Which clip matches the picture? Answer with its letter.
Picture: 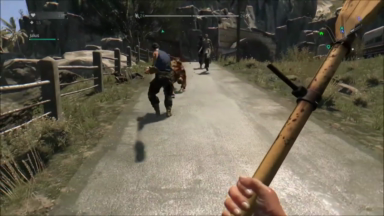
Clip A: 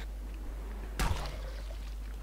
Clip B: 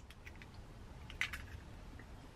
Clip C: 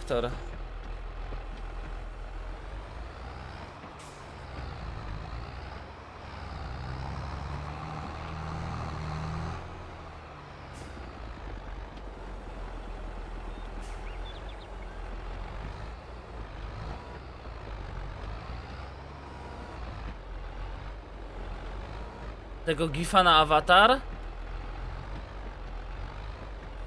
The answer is A